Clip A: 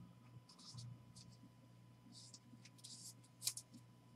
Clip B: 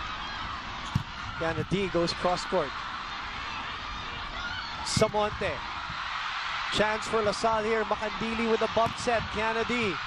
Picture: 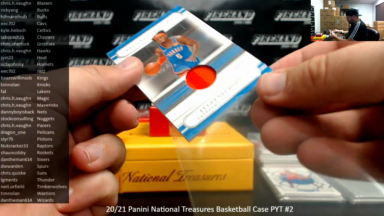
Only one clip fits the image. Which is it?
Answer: A